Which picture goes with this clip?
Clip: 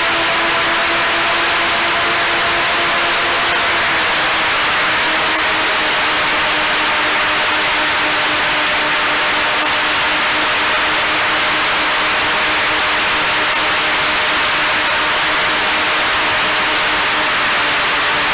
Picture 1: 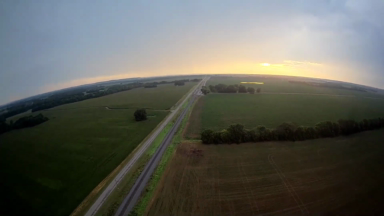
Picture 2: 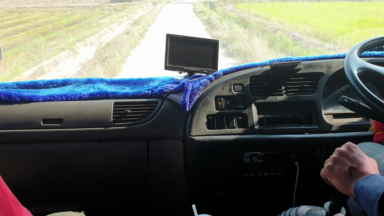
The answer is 1